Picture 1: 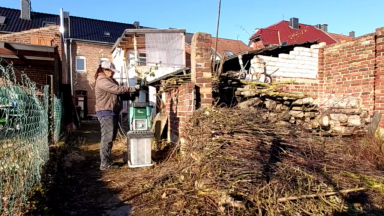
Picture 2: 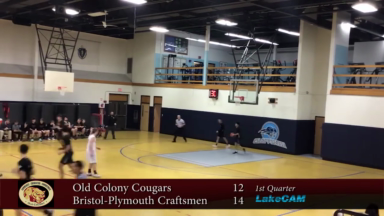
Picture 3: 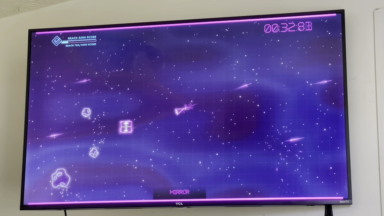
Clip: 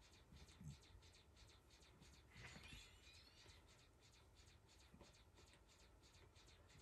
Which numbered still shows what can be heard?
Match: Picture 3